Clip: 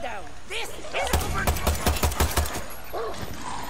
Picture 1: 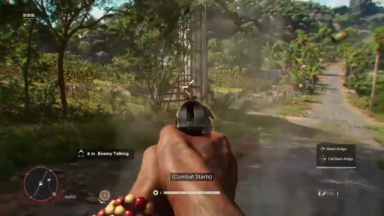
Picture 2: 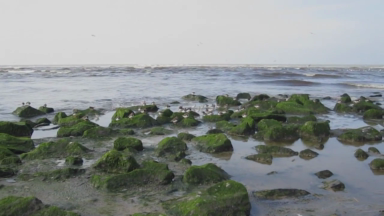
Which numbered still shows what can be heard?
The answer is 1